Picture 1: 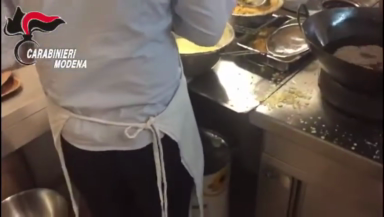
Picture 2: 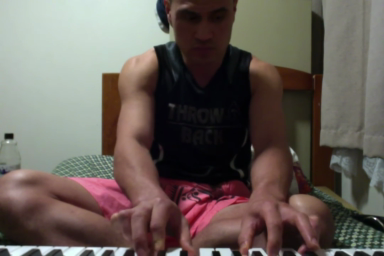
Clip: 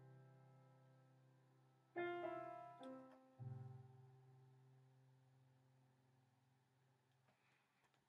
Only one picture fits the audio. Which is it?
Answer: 2